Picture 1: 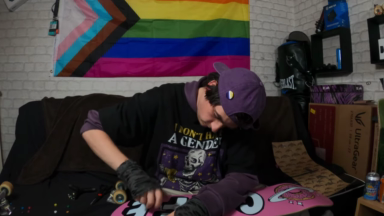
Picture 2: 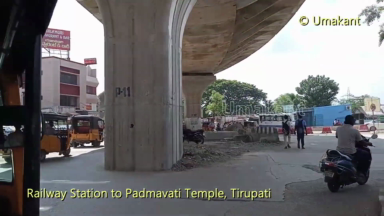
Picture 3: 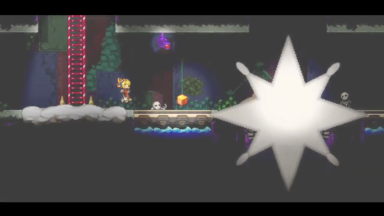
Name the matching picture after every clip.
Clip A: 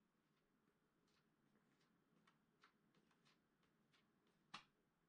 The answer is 1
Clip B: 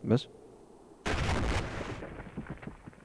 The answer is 3